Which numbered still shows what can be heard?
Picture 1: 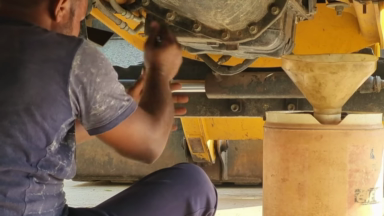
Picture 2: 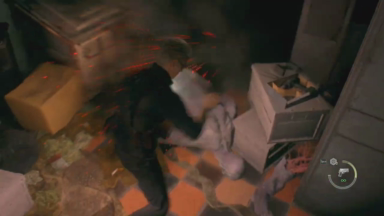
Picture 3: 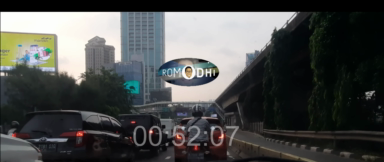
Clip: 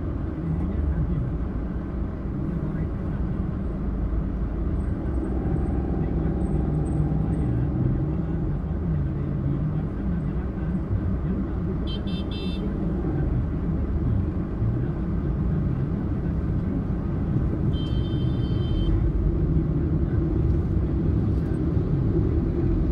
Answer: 3